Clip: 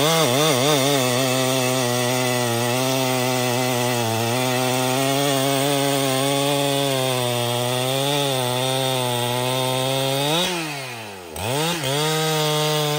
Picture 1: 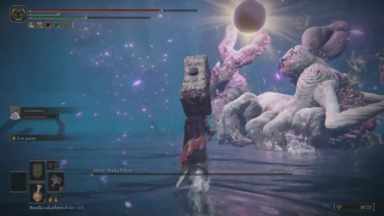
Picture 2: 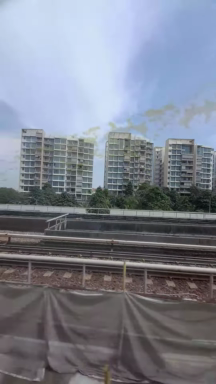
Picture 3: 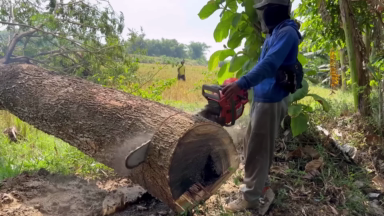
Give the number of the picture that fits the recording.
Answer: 3